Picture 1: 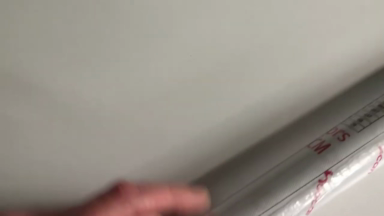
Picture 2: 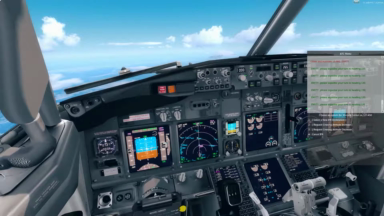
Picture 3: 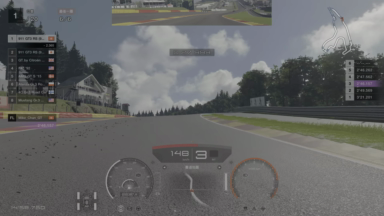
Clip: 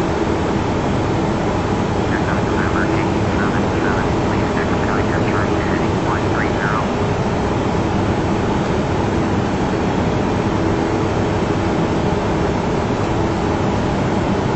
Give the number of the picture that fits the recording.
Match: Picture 2